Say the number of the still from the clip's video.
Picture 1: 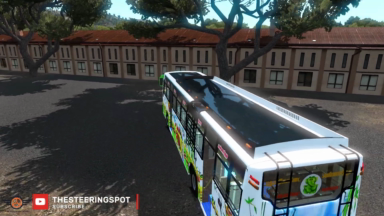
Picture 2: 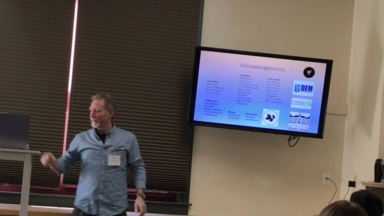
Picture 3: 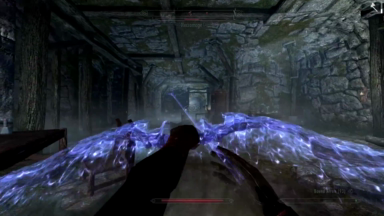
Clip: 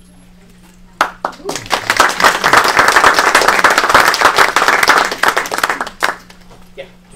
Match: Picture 2